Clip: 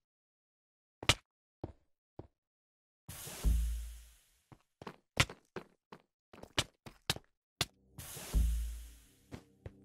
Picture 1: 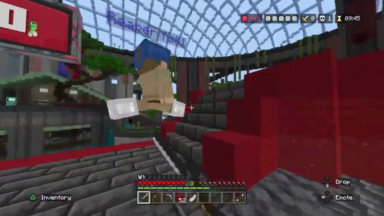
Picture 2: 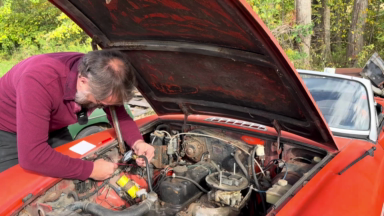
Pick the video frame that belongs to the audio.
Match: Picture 1